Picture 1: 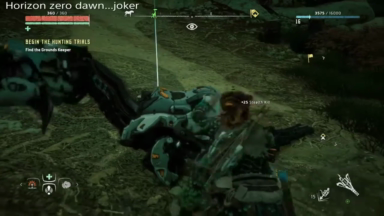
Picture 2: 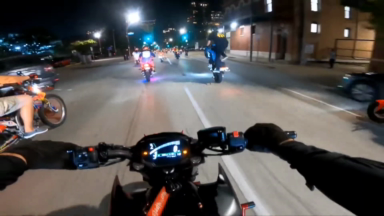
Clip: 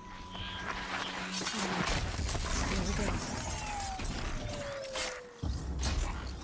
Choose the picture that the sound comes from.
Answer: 1